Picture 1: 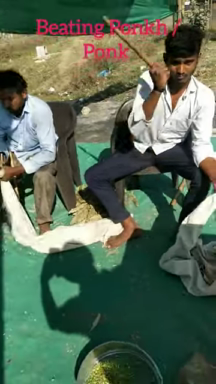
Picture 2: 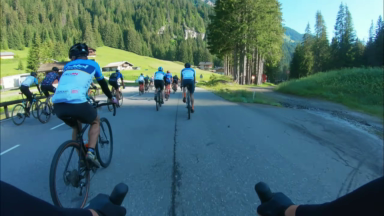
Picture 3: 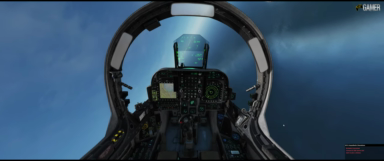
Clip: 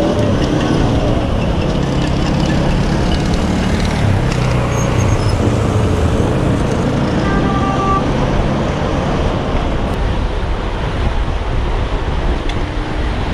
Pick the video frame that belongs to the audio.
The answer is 2